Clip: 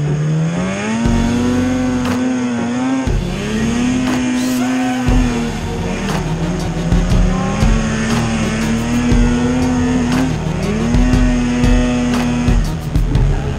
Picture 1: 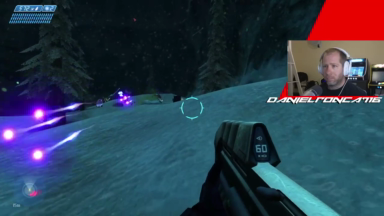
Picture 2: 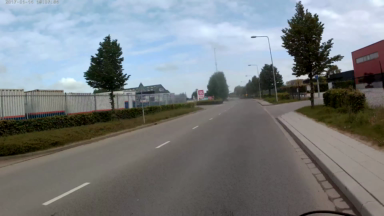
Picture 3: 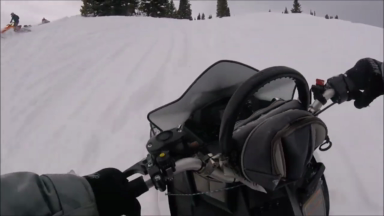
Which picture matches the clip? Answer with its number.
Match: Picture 3